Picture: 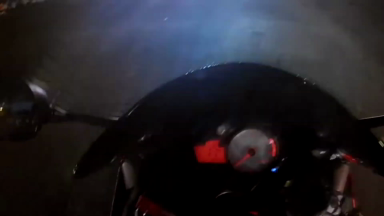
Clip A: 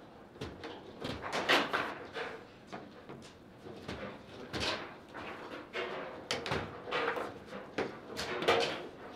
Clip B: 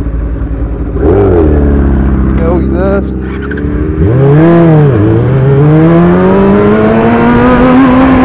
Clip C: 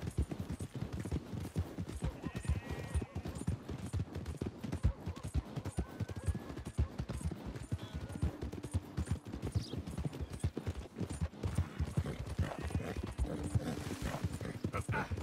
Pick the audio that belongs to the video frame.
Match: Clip B